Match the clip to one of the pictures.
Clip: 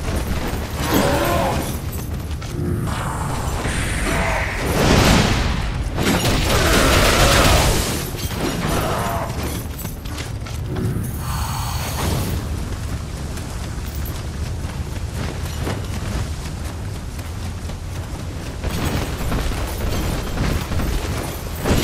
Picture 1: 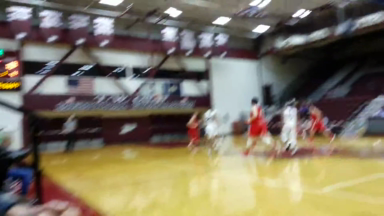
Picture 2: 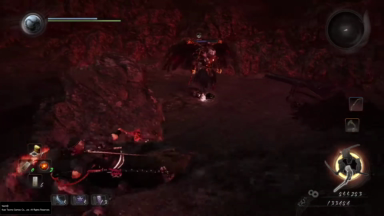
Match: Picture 2